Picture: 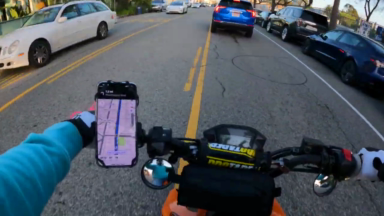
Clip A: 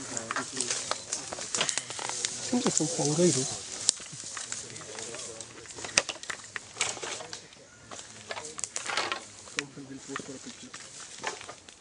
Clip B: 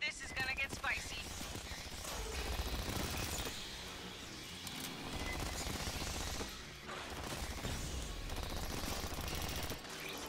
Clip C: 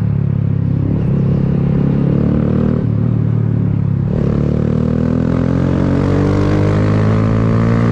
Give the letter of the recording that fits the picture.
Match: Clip C